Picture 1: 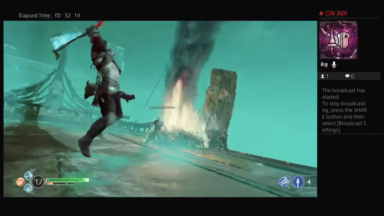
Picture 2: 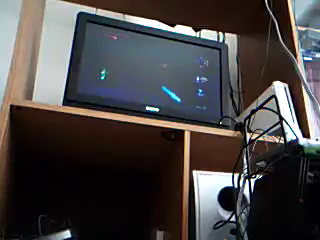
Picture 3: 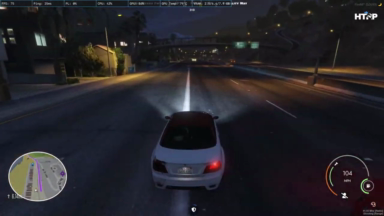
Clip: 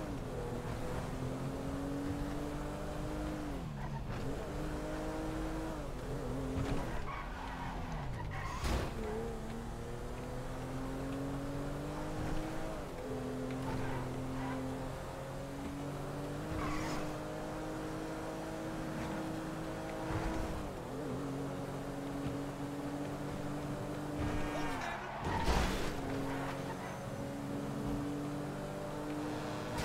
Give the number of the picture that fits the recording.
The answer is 3